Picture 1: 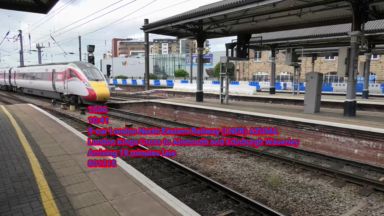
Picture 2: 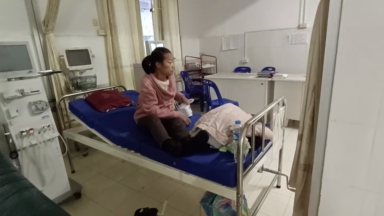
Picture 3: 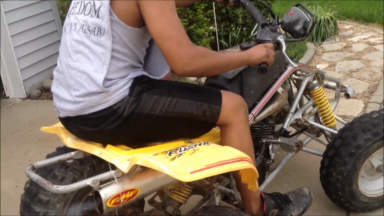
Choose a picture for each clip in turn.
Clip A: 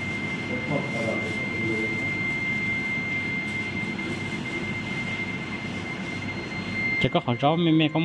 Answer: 2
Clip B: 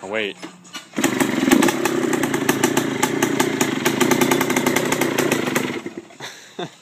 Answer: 3